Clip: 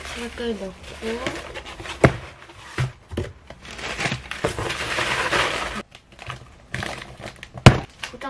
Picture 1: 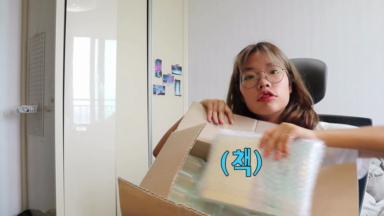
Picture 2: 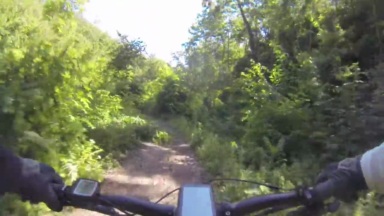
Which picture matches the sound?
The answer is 1